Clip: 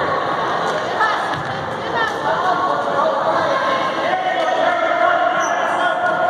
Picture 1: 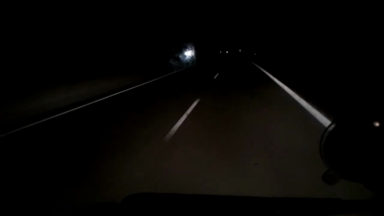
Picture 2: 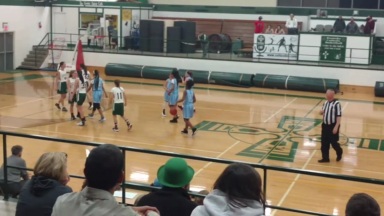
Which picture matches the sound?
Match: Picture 2